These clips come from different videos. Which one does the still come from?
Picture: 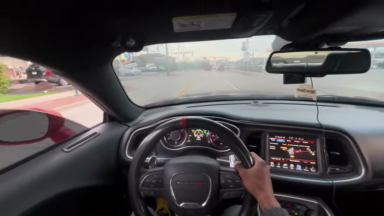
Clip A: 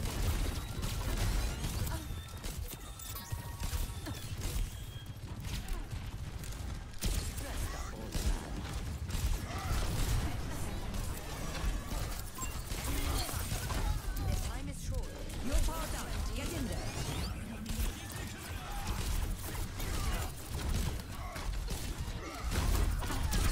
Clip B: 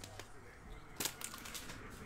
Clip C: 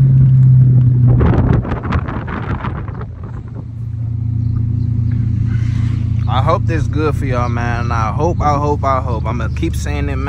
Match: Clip C